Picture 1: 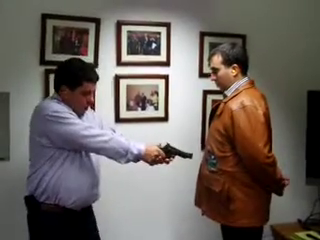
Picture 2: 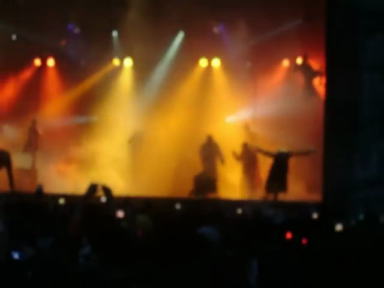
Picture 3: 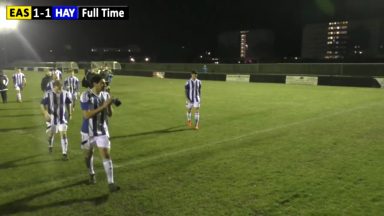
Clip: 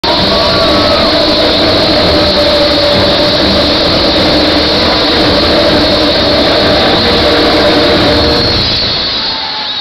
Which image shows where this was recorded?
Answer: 2